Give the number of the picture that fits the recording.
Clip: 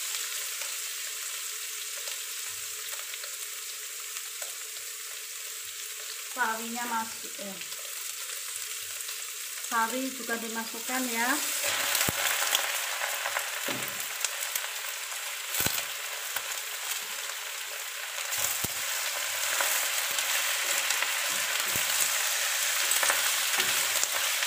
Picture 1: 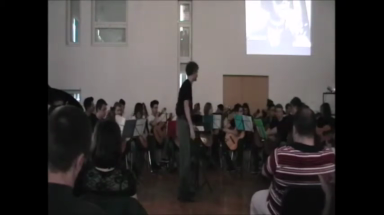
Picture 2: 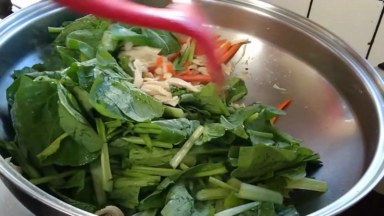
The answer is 2